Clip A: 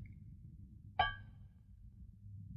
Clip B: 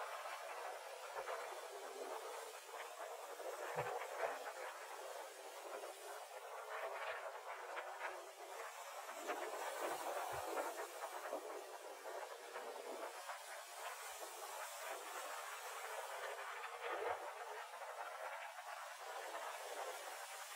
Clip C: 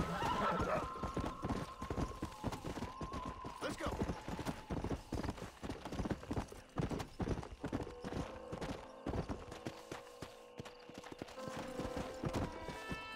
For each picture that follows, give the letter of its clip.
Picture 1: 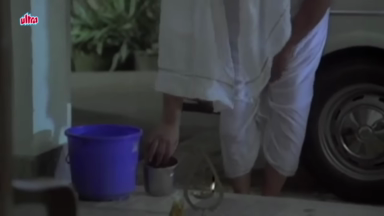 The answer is A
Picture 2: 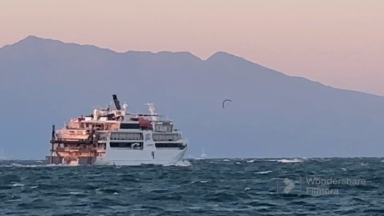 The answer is B